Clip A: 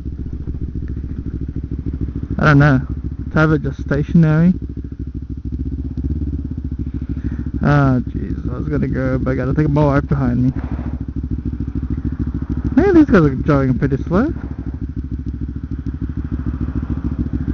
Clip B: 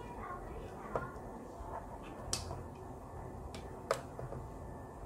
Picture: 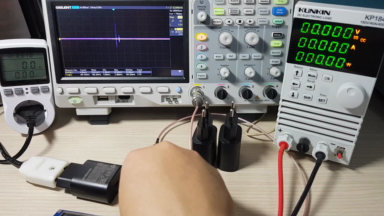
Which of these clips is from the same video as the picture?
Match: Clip B